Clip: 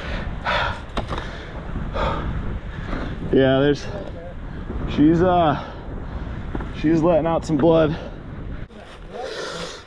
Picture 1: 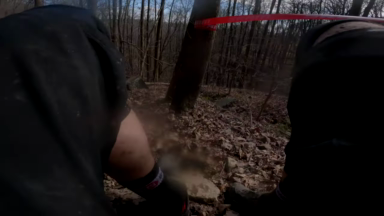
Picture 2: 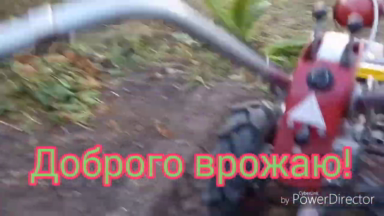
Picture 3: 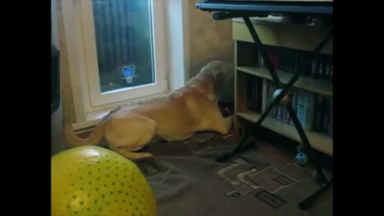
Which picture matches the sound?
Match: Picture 1